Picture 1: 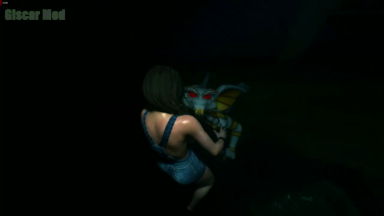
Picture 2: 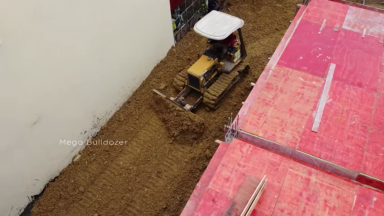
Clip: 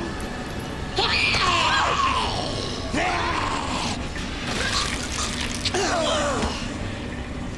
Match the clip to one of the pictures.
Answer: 1